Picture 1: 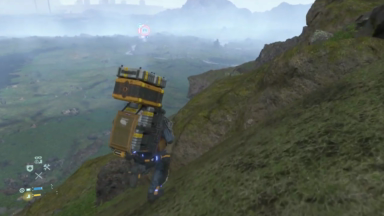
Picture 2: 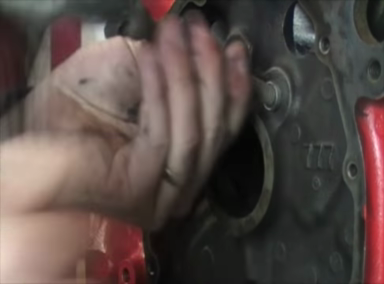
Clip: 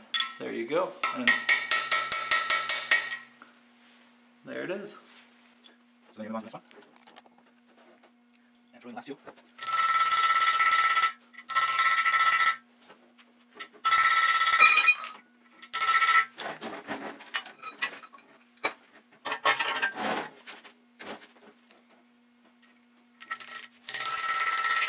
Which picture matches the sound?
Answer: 2